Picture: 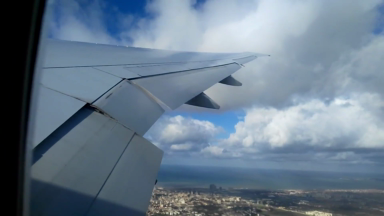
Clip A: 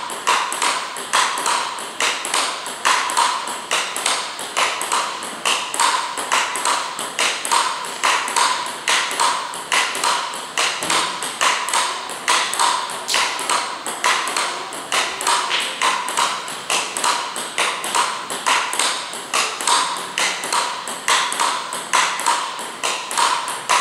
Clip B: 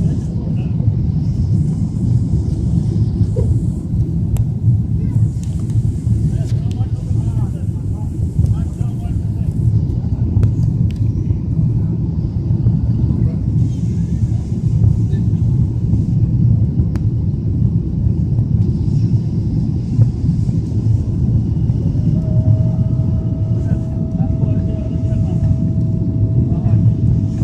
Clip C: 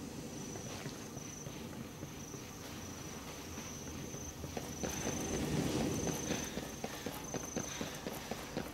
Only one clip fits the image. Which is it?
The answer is B